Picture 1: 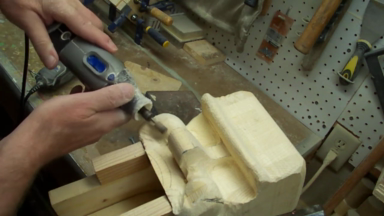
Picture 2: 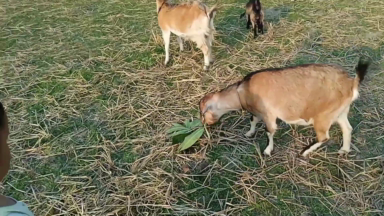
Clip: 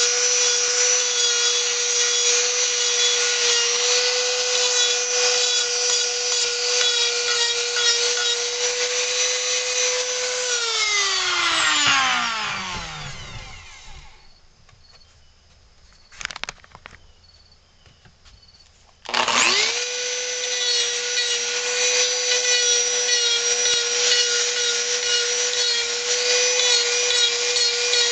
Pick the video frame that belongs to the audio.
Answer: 1